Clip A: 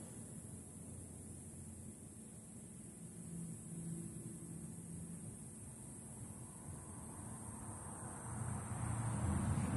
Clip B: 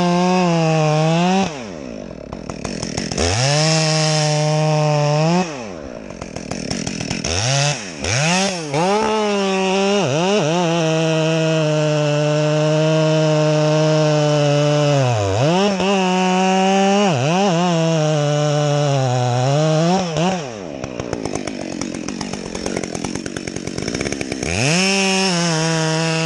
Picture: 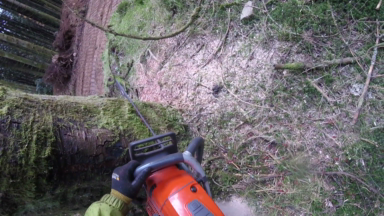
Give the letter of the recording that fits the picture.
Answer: B